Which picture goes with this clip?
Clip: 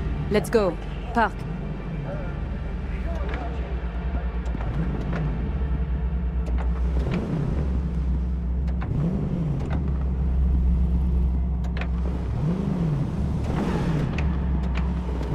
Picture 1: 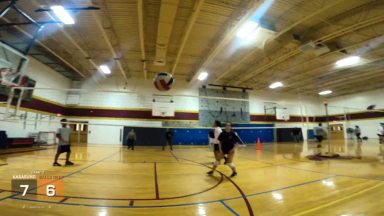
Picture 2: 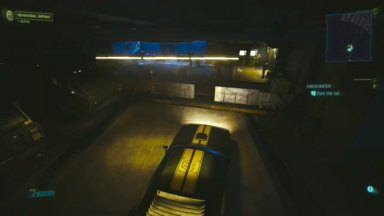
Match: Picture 2